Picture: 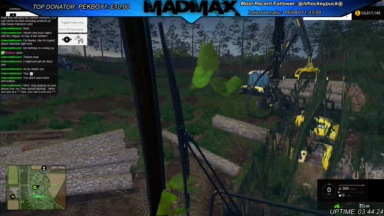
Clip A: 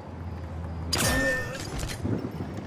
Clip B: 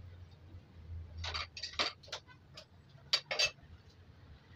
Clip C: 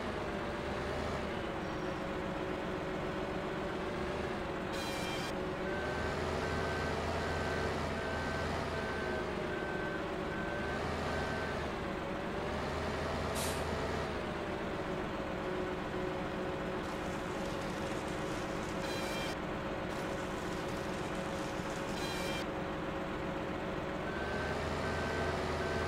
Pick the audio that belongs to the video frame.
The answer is C